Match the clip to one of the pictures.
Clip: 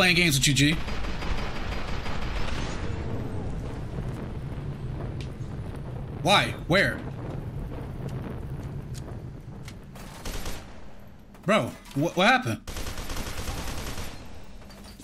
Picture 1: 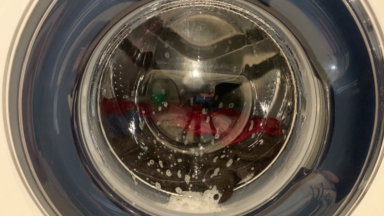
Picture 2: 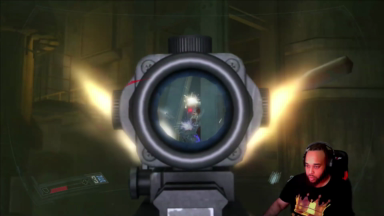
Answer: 2